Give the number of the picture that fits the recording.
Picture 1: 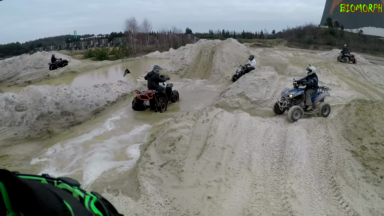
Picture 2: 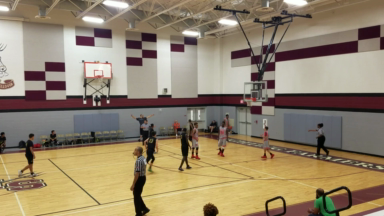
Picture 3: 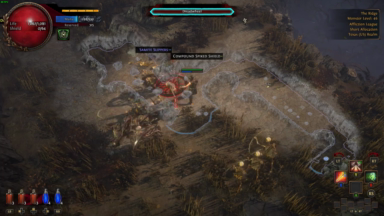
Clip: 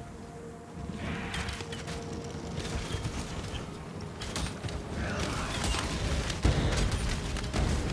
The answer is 3